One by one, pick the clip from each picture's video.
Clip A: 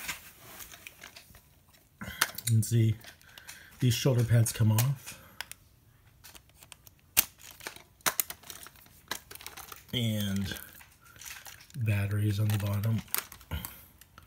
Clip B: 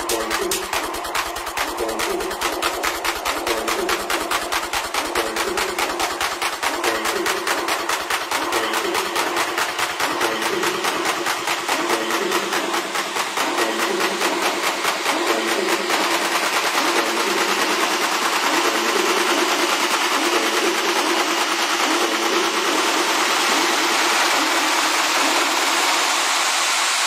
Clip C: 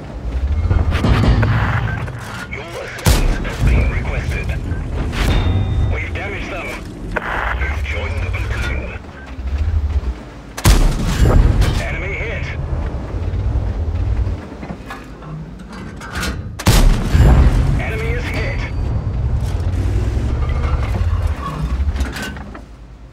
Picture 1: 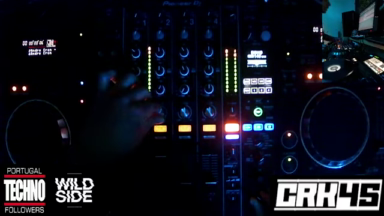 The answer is B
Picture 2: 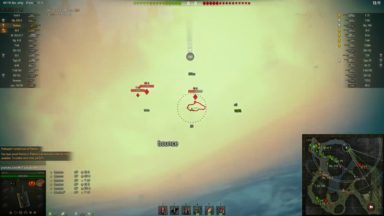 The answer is C